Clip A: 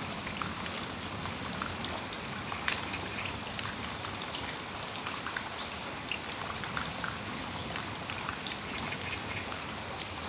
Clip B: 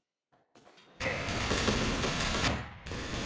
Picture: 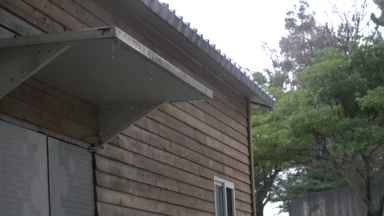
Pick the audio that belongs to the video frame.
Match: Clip A